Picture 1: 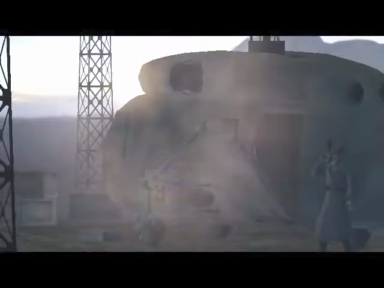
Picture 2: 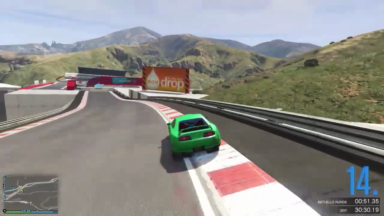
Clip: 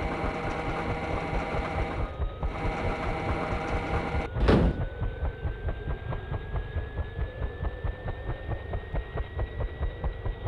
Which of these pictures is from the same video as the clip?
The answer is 1